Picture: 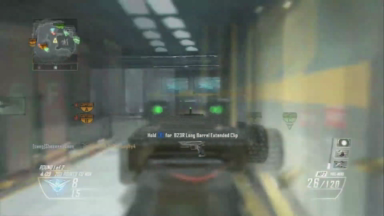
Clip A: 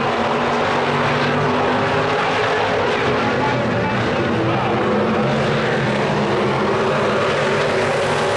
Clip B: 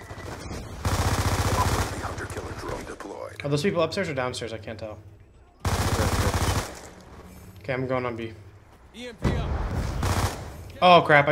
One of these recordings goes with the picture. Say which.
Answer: B